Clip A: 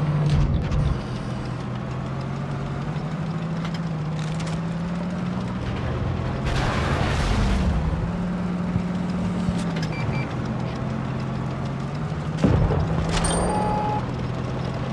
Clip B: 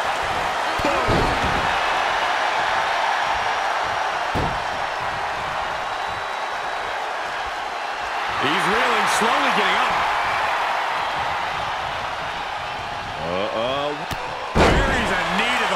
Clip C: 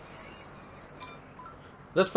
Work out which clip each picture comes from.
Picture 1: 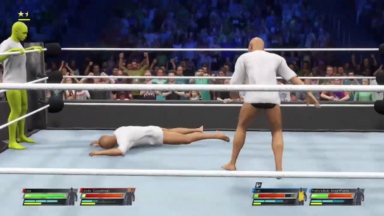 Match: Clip B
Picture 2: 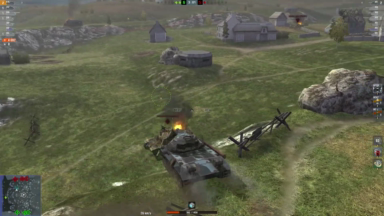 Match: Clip A